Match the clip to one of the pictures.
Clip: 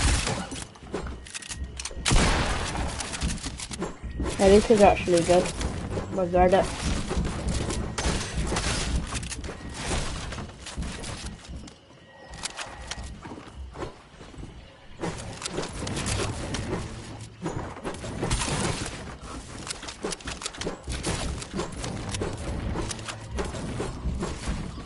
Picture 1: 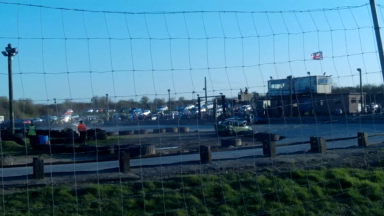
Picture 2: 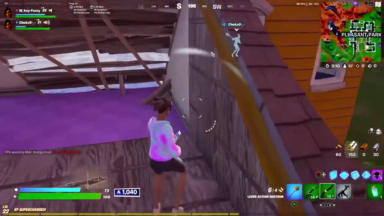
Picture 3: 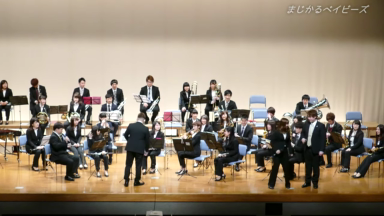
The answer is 2